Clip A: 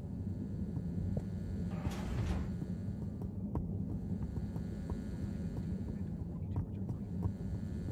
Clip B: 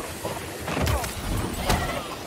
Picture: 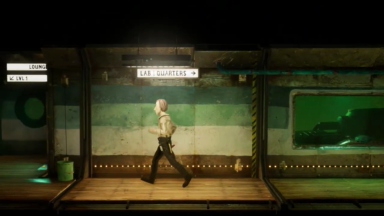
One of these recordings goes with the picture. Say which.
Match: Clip A